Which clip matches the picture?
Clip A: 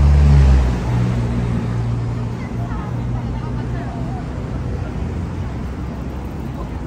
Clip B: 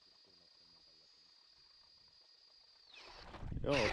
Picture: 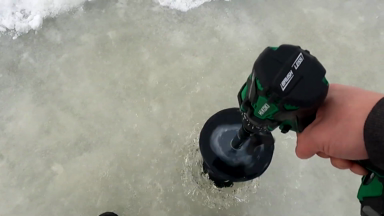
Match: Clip B